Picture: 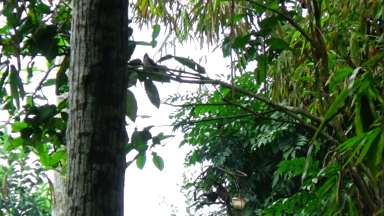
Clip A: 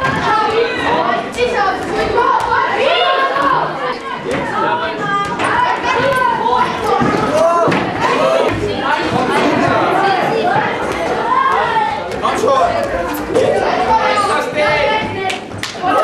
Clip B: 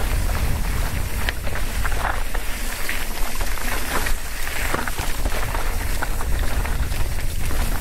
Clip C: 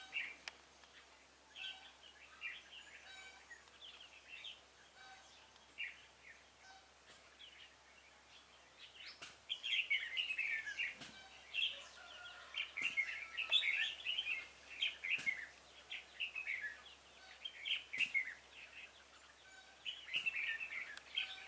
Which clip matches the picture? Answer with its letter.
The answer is C